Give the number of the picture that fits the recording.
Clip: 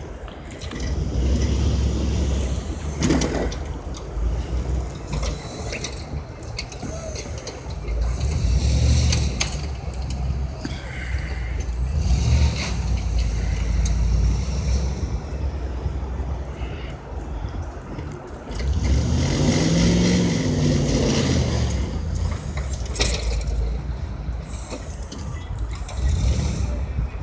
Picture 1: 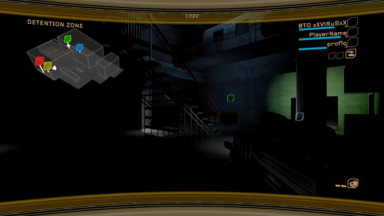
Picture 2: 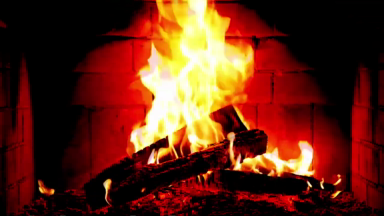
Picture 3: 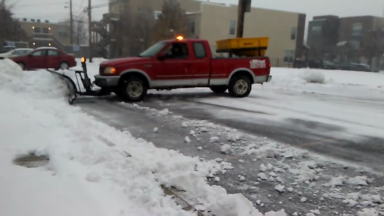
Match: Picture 3